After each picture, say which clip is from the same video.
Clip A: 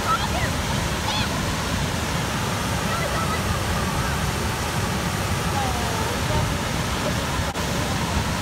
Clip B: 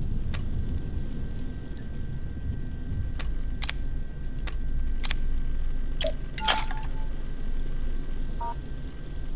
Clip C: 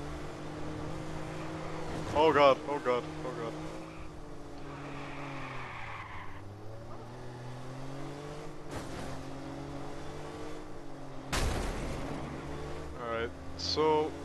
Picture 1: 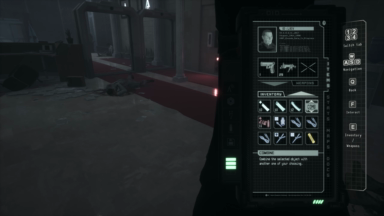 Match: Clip B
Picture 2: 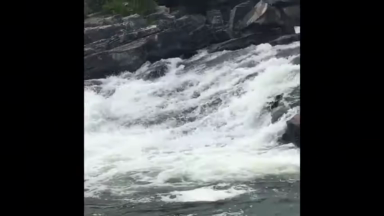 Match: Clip A